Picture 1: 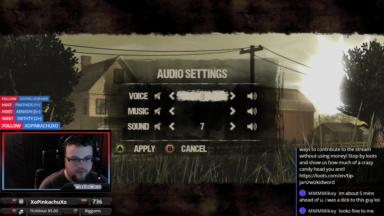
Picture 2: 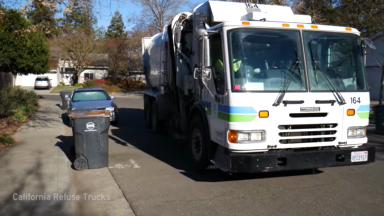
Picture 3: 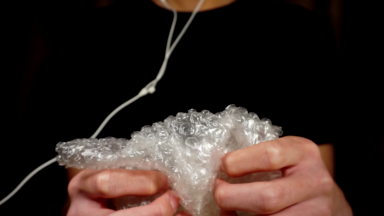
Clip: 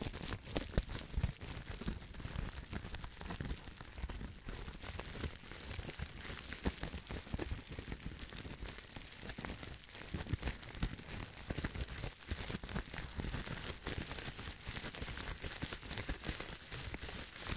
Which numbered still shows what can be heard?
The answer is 3